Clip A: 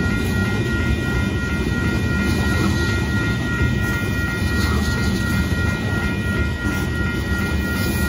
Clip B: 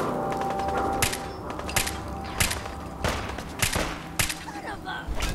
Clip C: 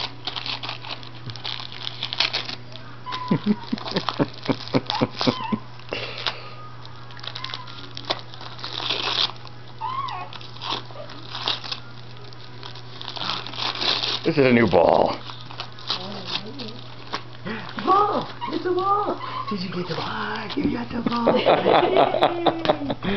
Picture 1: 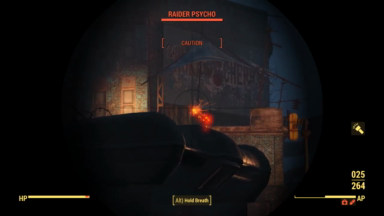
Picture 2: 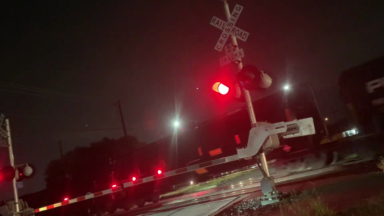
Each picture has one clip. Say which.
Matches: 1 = B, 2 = A